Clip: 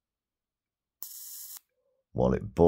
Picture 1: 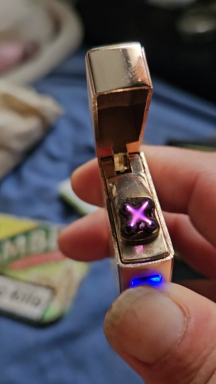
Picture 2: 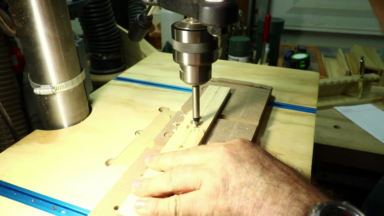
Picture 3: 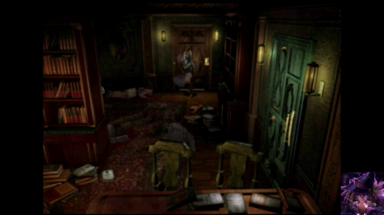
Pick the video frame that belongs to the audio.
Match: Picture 1